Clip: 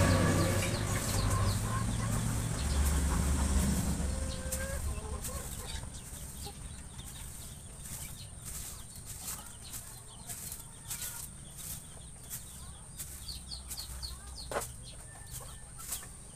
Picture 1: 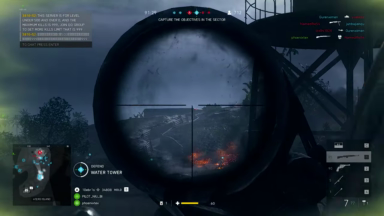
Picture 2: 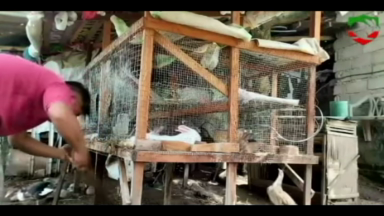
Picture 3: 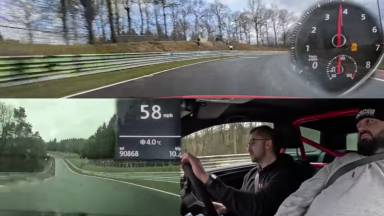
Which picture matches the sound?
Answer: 2